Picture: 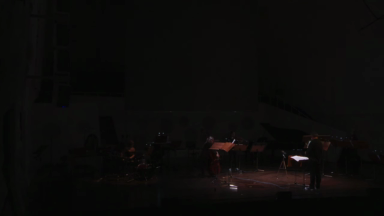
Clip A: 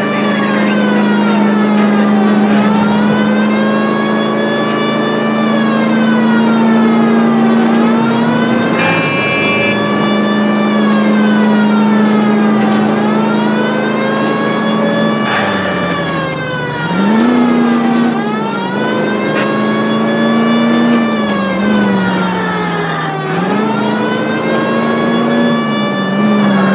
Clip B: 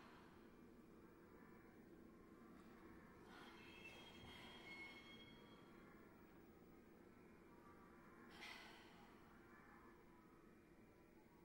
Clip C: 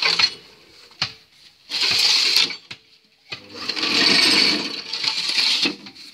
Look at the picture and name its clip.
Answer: B